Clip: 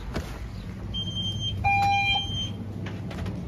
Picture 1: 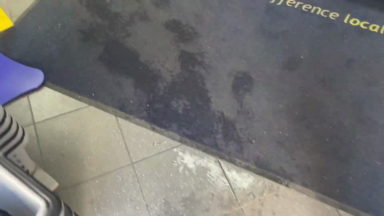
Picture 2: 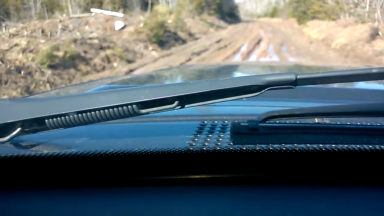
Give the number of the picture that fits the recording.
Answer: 1